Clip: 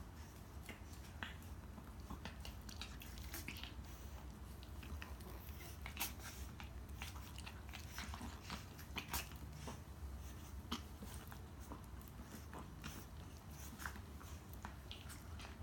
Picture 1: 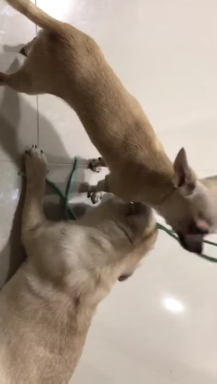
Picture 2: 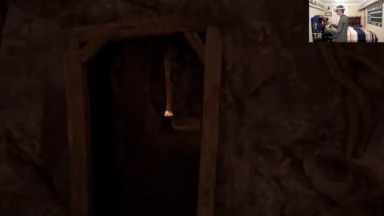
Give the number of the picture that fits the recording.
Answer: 1